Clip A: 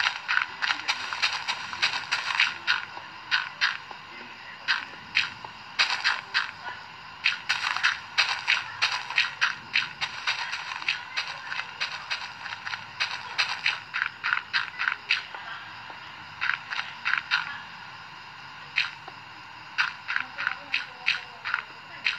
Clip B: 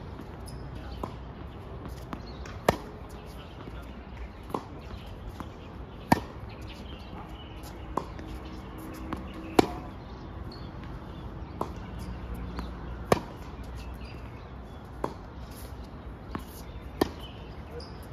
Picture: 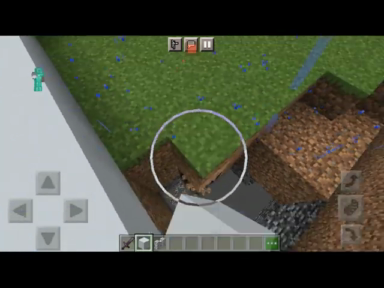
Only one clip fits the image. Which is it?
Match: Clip A